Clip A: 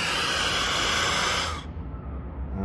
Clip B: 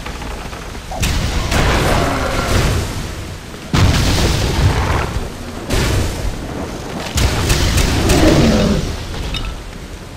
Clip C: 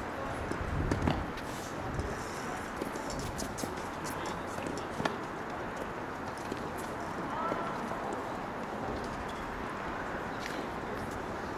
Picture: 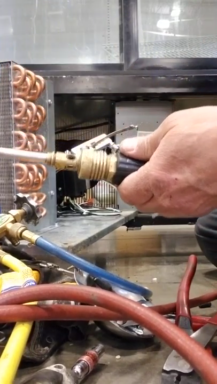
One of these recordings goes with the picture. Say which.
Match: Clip A